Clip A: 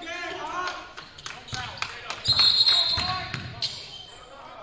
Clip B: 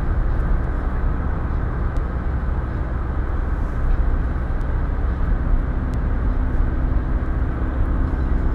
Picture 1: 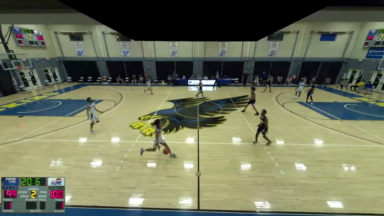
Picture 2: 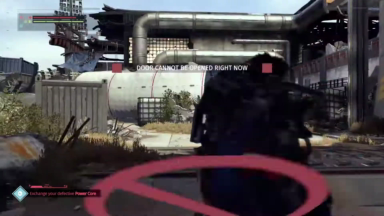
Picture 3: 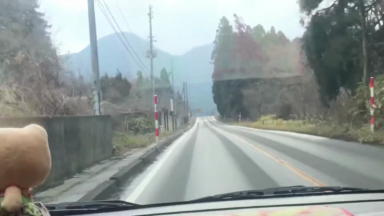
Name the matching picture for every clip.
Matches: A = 1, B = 3